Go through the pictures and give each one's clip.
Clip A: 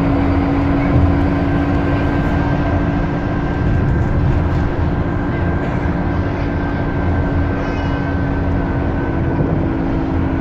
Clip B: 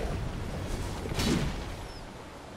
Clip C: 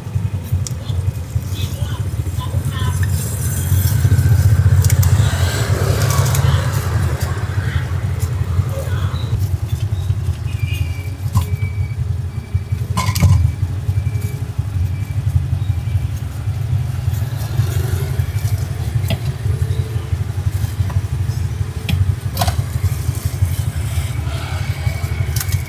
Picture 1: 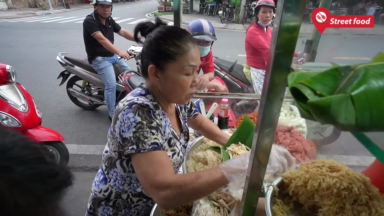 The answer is C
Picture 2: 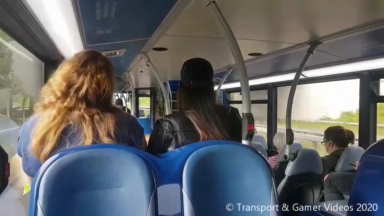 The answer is A